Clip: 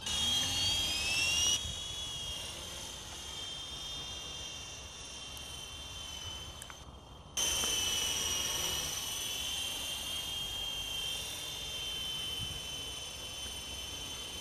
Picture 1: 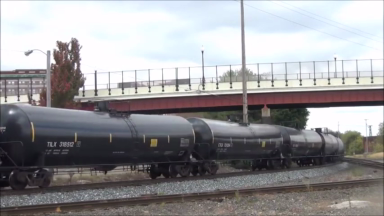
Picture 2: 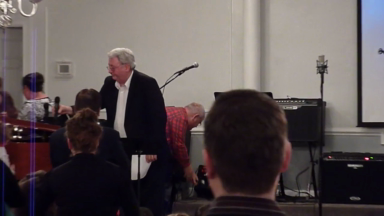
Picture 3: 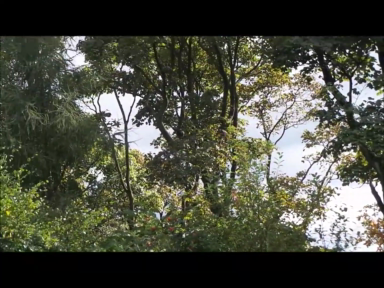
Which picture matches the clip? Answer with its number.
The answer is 3